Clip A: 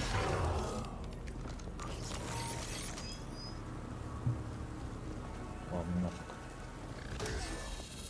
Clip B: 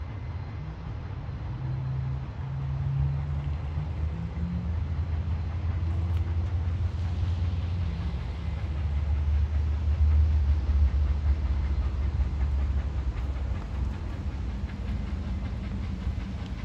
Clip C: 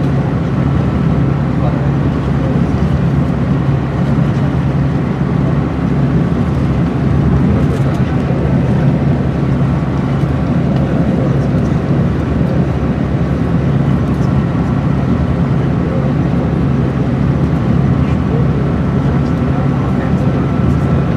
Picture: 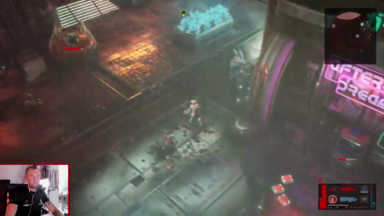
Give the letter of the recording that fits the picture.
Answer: A